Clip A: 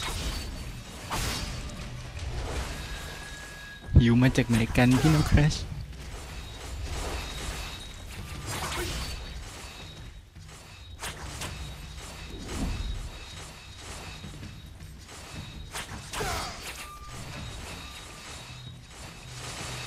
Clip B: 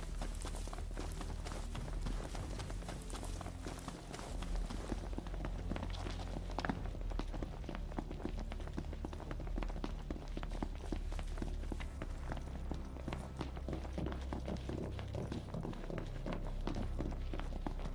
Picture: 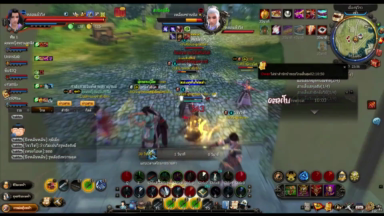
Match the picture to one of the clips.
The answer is A